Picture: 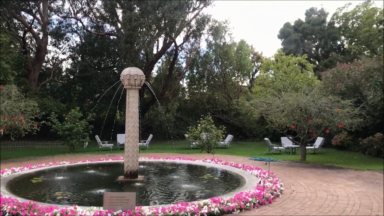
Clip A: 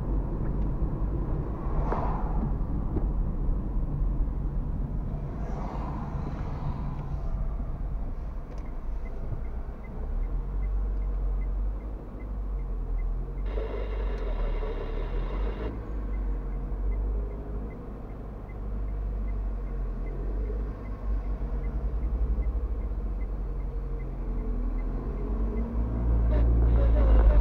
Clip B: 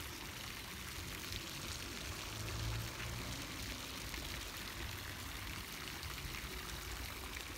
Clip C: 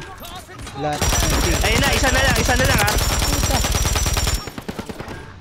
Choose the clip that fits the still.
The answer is B